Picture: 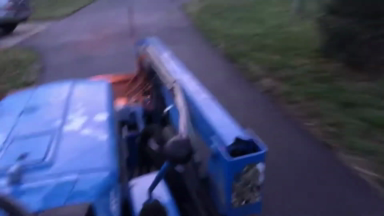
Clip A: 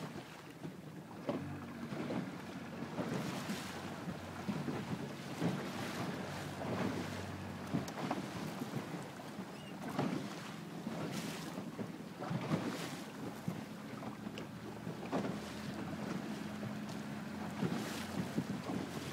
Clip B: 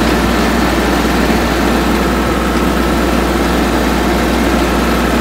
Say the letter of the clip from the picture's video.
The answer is B